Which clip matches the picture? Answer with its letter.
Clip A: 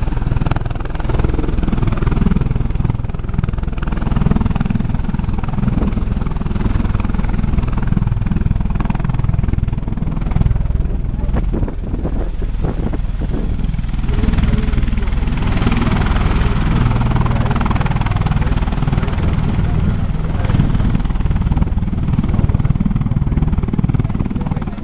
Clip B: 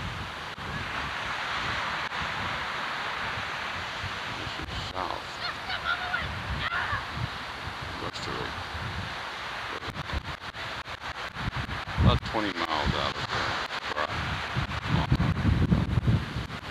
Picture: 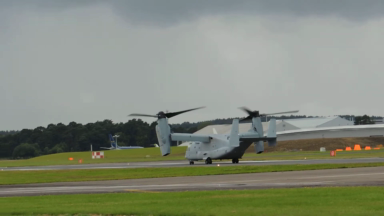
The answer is A